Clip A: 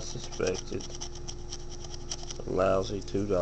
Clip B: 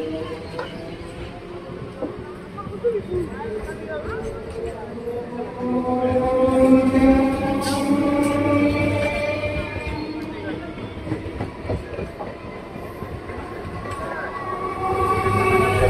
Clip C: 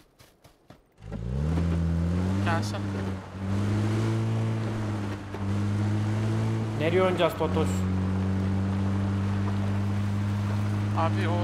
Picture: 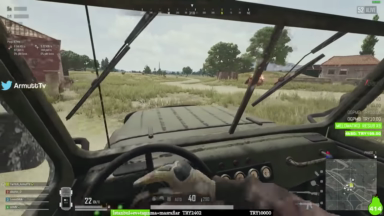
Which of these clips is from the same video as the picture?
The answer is C